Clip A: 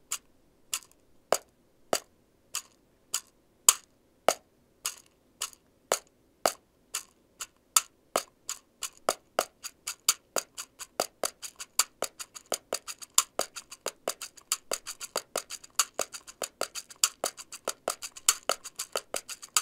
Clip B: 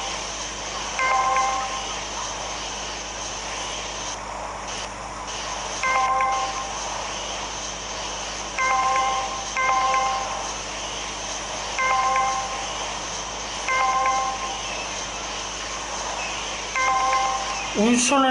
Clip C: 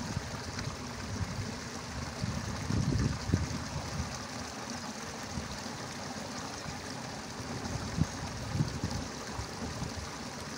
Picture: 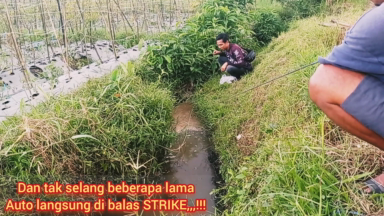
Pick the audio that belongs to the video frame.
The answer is C